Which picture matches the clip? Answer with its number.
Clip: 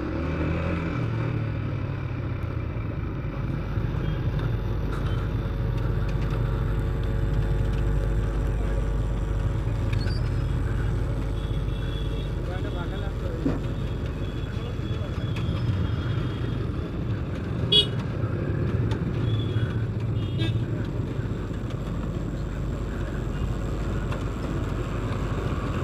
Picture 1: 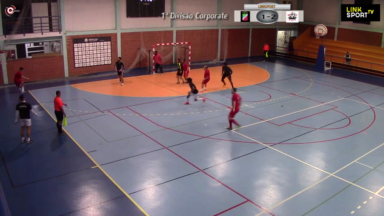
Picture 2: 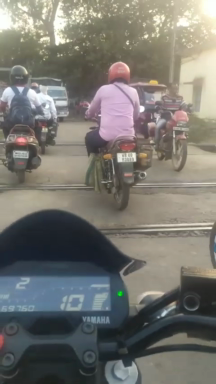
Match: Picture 2